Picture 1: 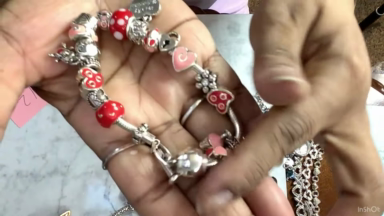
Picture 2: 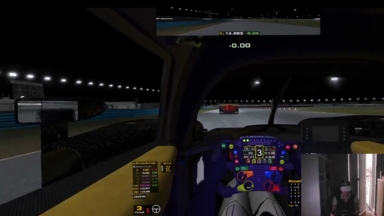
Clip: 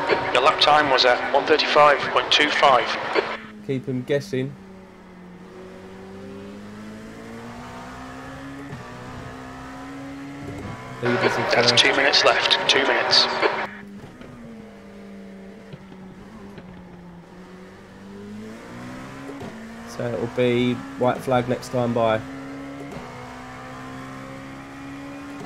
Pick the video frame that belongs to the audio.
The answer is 2